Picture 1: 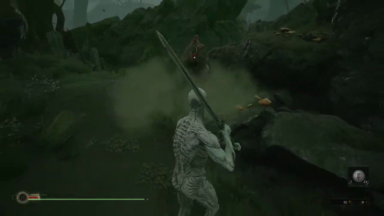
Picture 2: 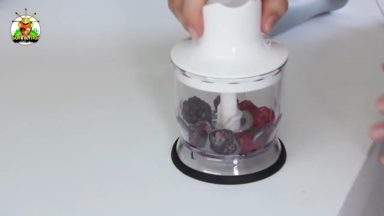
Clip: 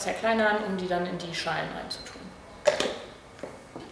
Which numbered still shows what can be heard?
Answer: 2